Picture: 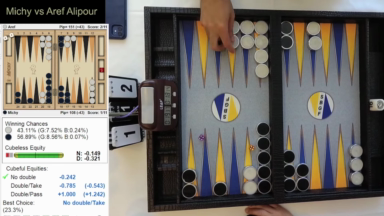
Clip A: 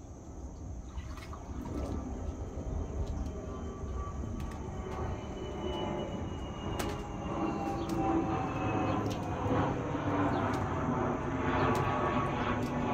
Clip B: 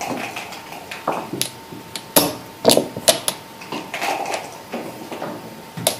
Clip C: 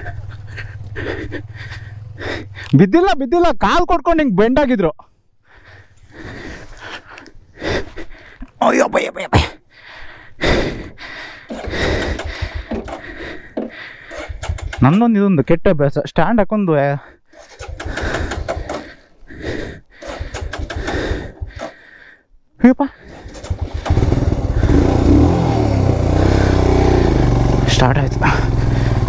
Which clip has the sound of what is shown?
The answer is B